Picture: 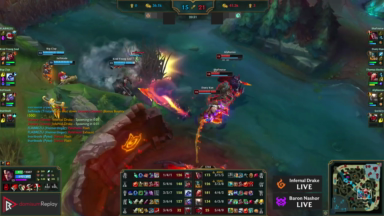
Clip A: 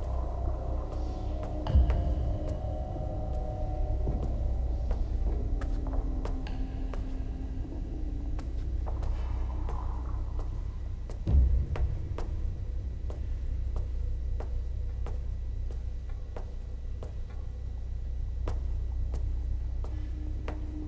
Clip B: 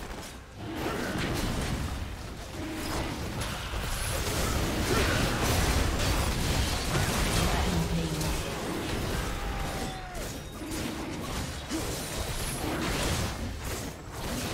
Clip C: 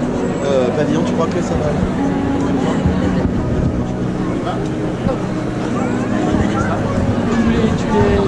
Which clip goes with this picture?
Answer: B